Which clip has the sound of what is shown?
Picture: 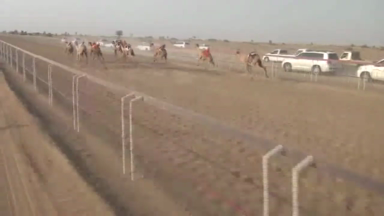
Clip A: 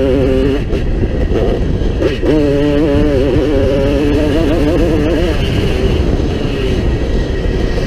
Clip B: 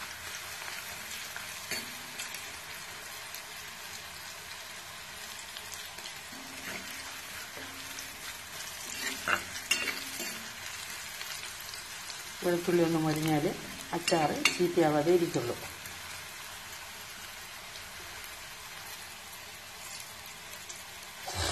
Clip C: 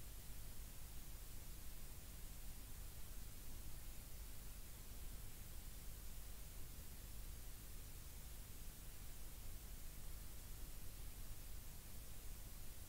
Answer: C